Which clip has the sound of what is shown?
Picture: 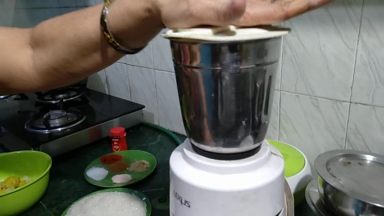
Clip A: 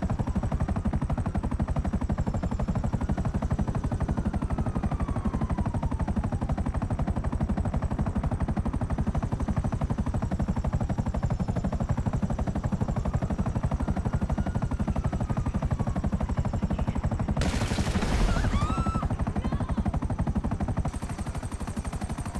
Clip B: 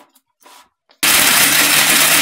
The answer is B